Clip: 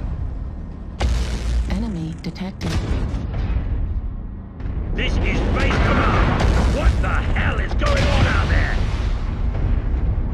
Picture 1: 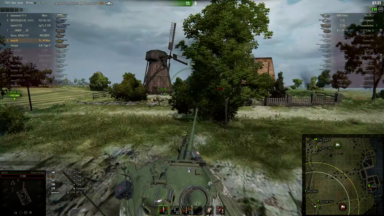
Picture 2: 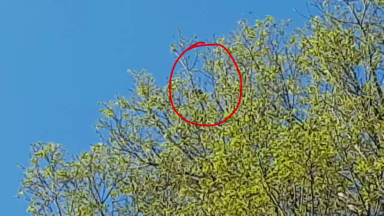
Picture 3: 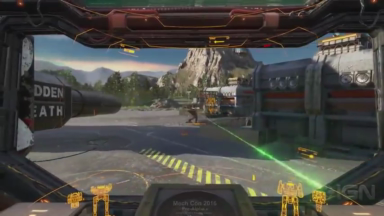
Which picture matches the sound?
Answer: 3